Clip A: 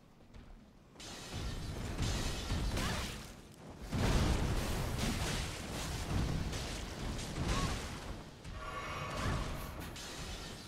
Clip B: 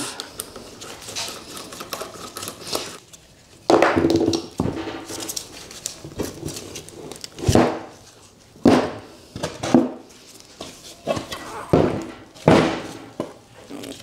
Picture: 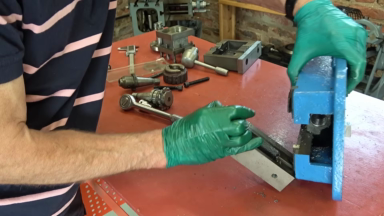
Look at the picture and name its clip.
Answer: B